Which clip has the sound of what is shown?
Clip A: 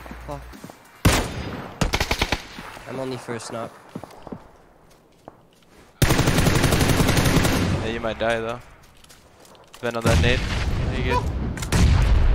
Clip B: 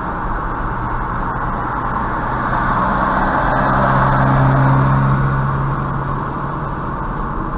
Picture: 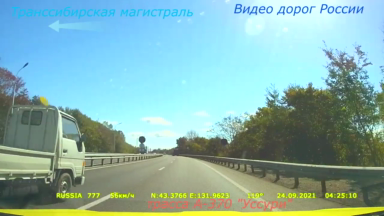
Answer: B